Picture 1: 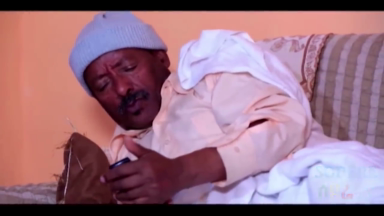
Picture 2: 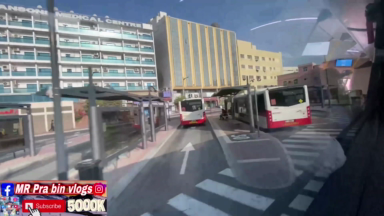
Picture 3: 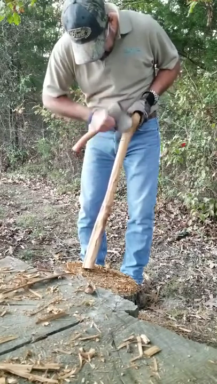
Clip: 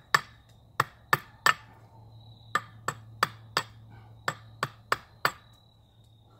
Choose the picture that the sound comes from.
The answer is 3